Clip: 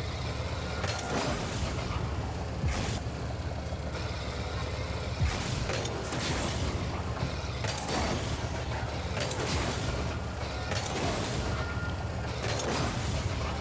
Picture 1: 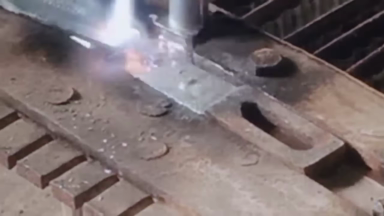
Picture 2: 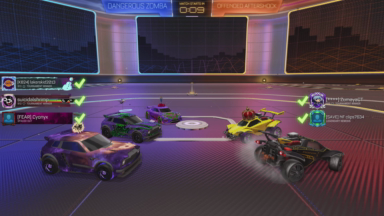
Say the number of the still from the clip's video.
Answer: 2